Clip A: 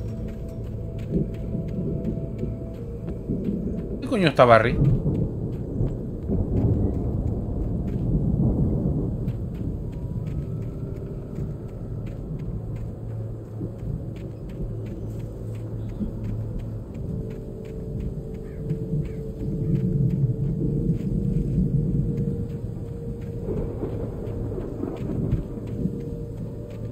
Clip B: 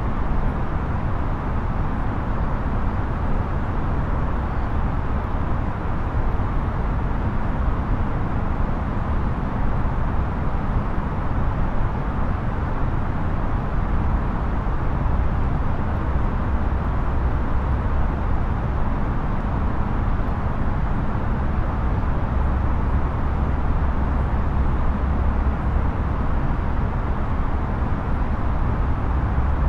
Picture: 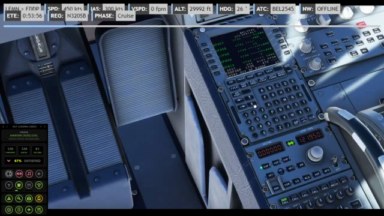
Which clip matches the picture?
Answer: B